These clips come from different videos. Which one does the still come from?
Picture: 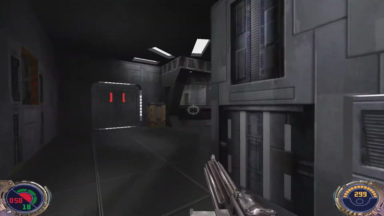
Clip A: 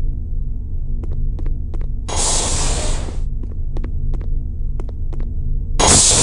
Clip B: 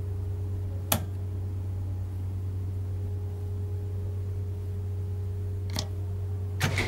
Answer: A